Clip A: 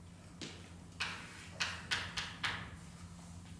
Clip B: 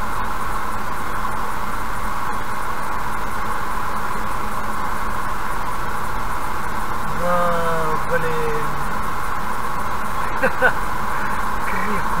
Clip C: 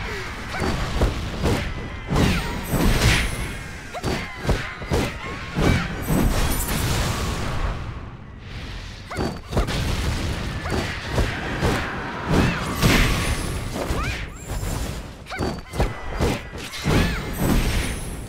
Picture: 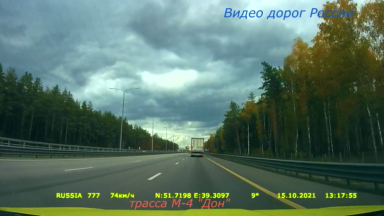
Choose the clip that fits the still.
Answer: B